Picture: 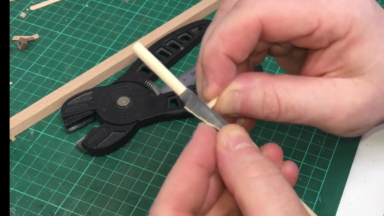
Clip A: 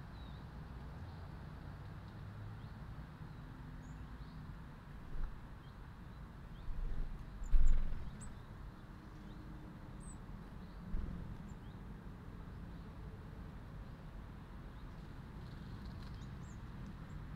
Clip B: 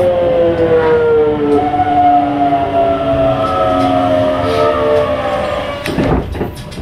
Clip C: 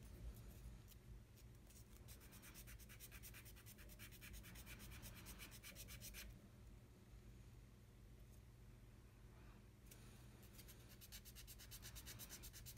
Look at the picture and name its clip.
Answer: C